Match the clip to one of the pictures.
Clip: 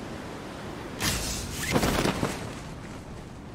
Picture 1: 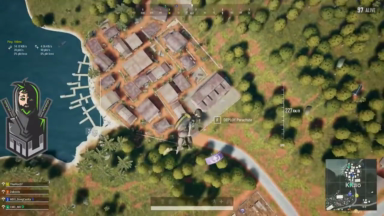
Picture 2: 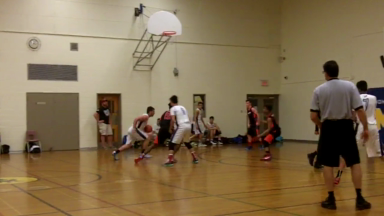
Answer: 1